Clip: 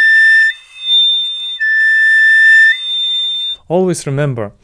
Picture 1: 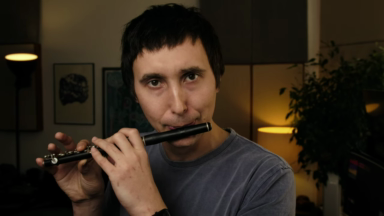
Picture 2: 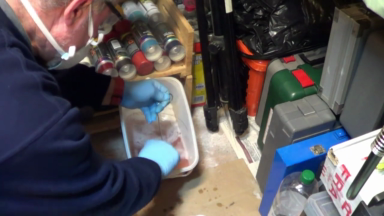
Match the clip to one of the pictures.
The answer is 1